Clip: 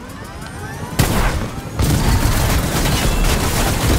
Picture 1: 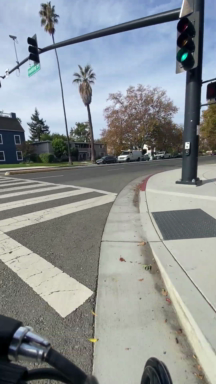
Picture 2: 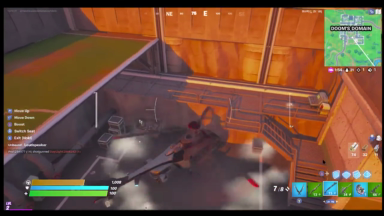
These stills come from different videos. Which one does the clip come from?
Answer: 2